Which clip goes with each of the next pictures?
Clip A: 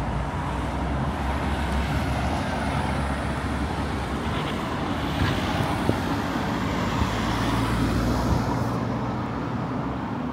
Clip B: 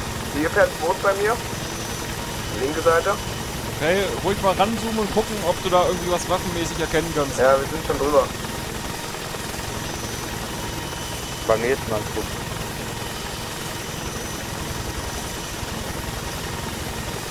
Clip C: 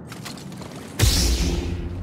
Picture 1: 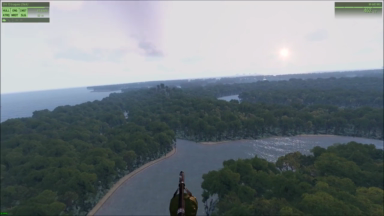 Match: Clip B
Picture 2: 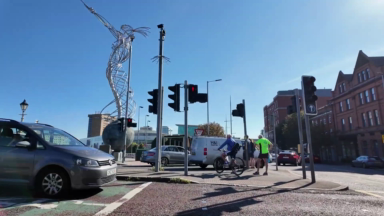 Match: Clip A